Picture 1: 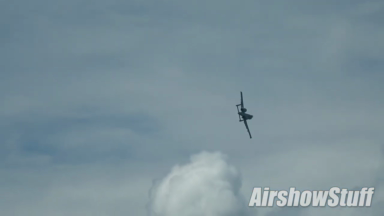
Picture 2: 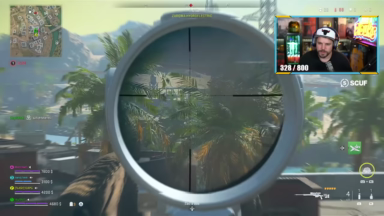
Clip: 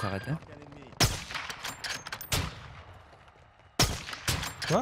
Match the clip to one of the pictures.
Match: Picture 2